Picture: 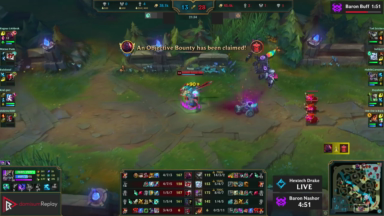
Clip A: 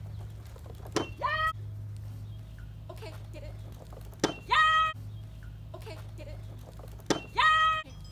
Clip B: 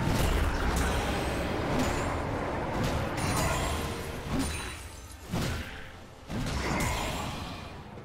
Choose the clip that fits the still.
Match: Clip B